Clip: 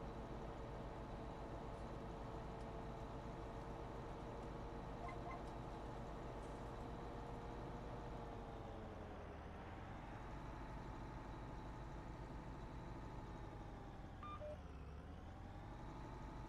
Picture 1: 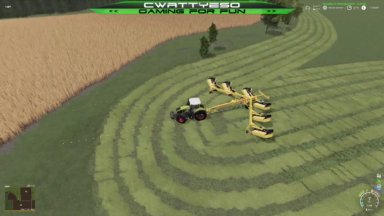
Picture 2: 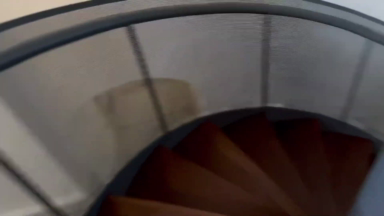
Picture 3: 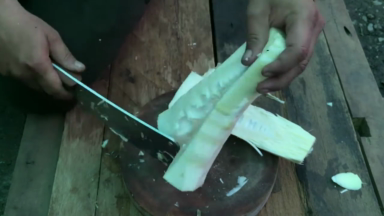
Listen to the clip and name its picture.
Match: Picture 1